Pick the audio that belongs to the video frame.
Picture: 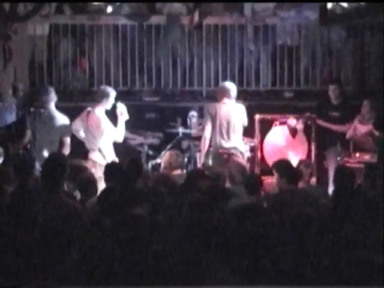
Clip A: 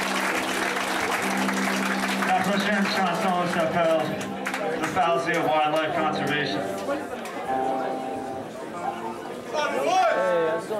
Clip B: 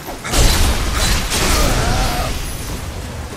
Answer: A